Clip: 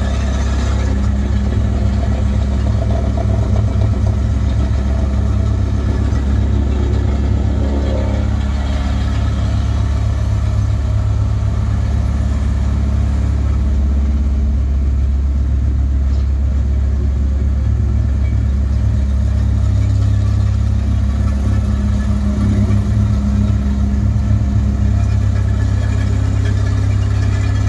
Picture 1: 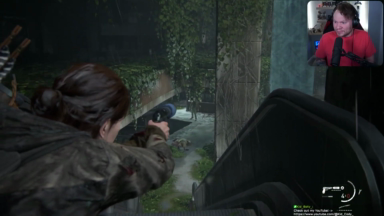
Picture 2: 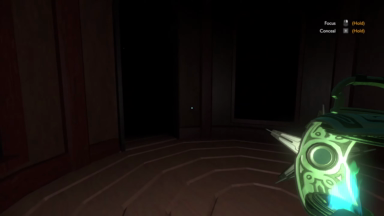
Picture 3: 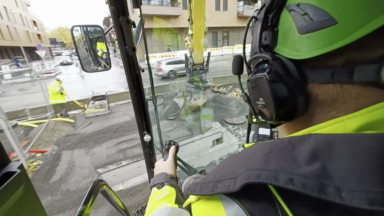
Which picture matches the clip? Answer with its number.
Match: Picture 3